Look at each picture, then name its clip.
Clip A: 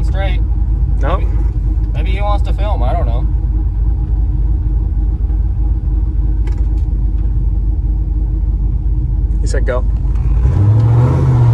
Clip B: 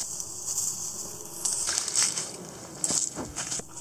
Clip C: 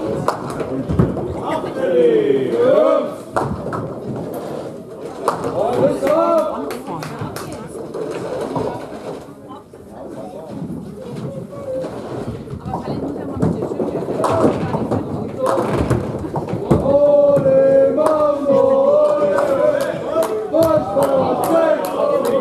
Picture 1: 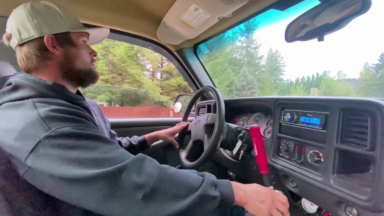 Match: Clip A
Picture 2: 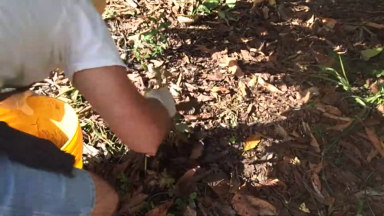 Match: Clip B